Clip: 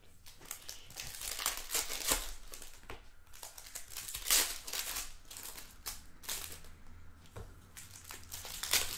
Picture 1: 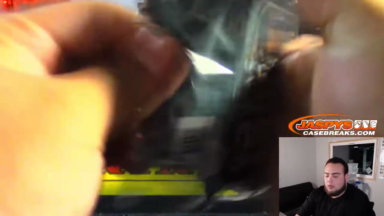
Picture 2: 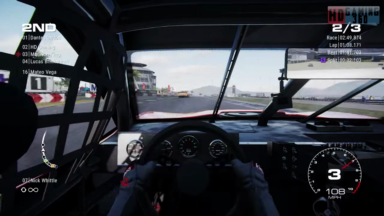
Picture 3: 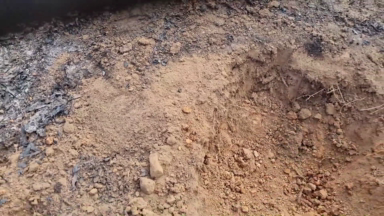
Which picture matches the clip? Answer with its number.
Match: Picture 1